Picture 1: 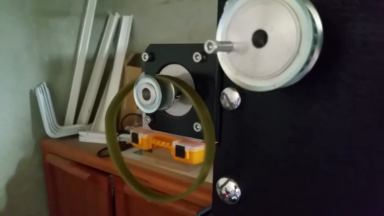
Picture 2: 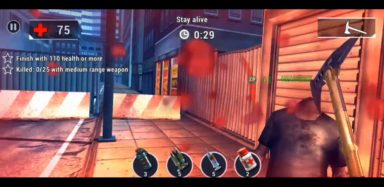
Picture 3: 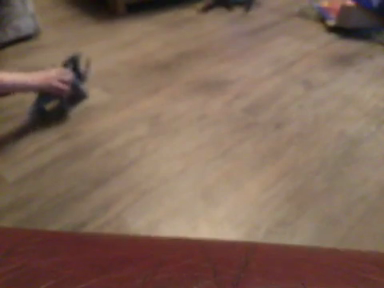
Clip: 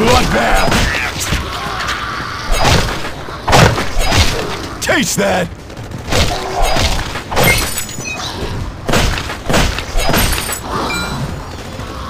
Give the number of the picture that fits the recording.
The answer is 2